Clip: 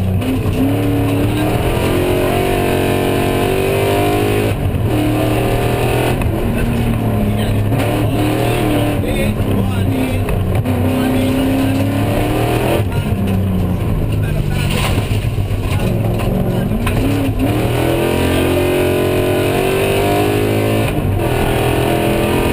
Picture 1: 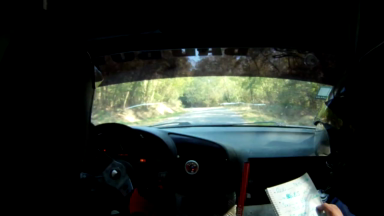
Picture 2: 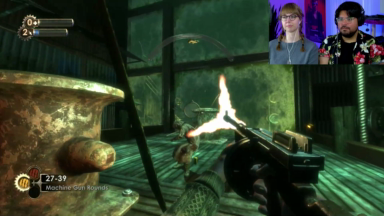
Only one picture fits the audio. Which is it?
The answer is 1